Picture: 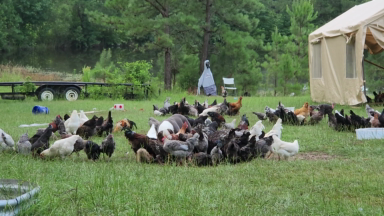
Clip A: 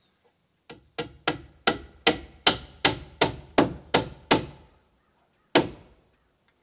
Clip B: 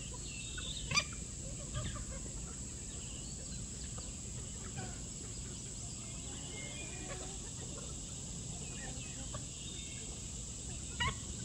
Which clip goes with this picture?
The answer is B